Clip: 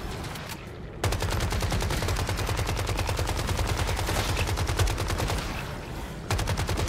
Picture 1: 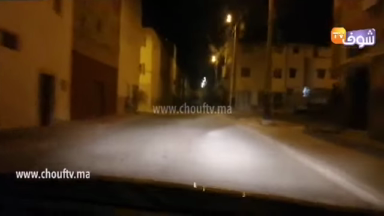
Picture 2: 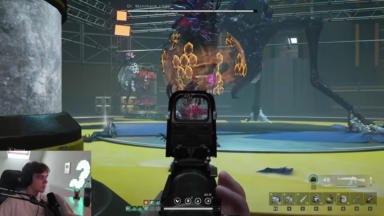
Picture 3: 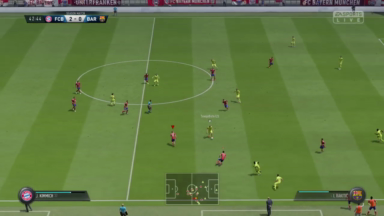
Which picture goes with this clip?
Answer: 2